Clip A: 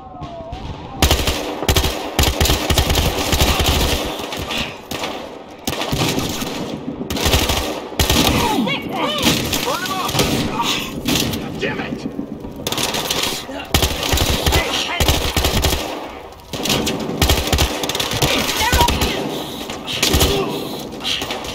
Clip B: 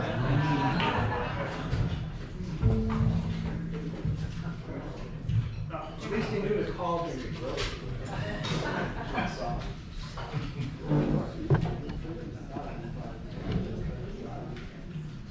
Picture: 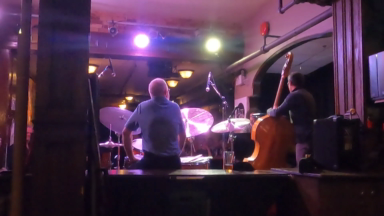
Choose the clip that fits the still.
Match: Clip B